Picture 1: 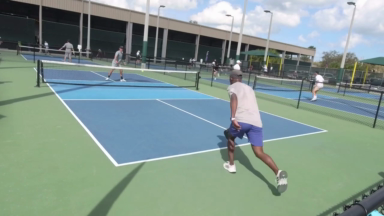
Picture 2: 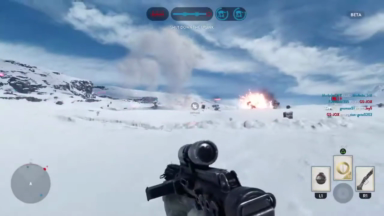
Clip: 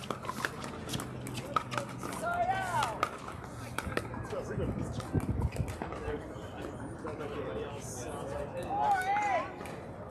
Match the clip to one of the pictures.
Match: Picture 1